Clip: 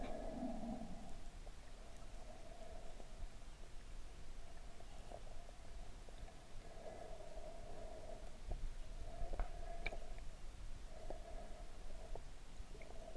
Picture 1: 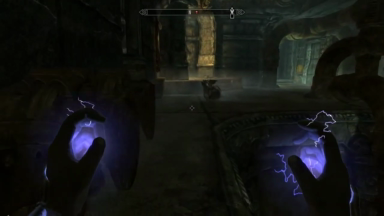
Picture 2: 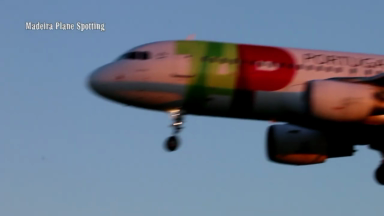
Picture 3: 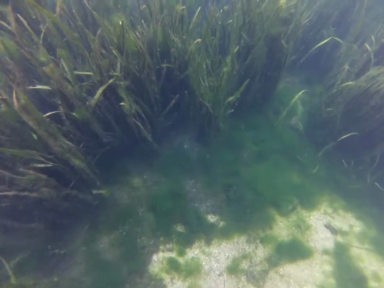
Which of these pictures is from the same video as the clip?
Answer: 3